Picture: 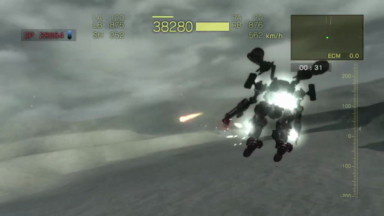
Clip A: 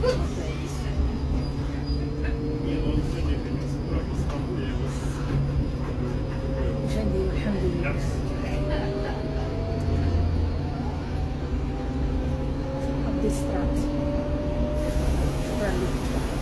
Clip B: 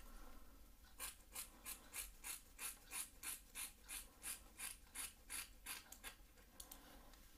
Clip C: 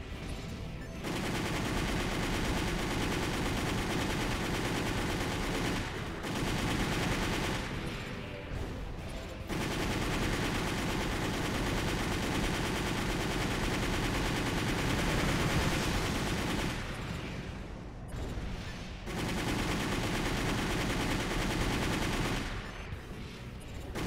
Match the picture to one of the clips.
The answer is C